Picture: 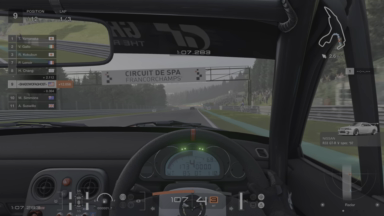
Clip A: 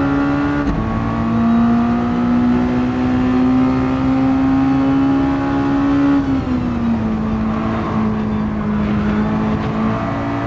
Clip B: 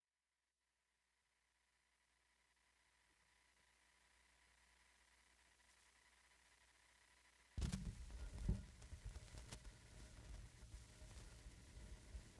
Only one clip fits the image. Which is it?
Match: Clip A